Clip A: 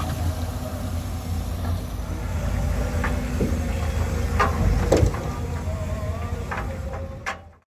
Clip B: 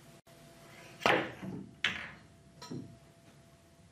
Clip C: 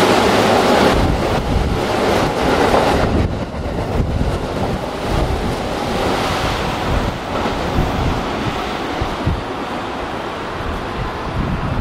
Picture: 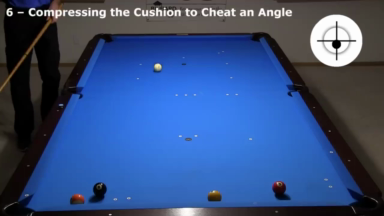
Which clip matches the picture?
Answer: B